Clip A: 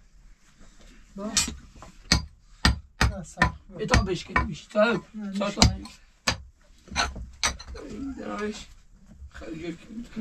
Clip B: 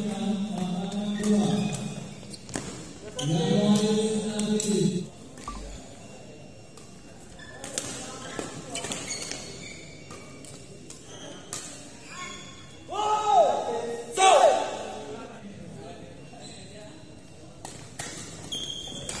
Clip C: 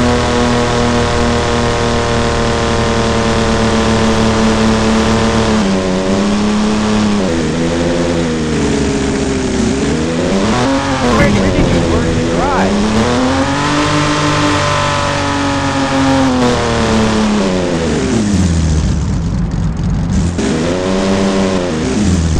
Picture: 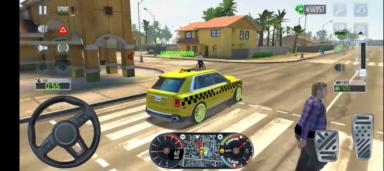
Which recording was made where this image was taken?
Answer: C